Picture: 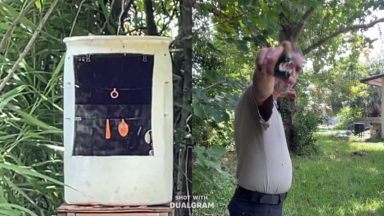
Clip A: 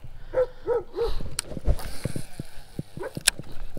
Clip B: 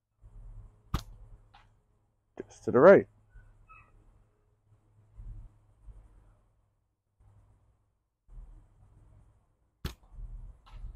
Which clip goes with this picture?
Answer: B